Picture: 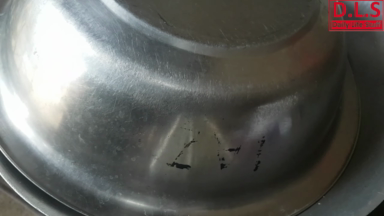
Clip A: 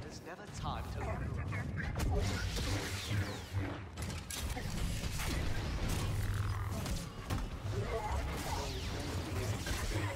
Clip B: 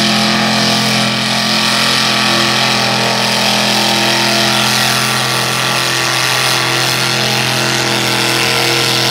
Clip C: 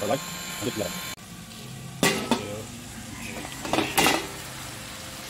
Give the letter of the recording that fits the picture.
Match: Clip C